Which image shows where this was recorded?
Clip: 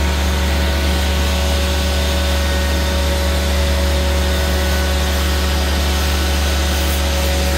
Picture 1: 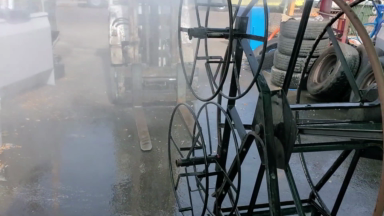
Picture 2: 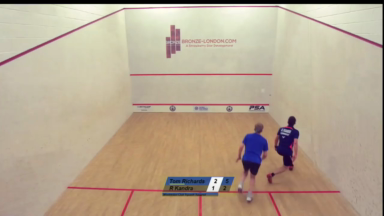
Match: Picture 1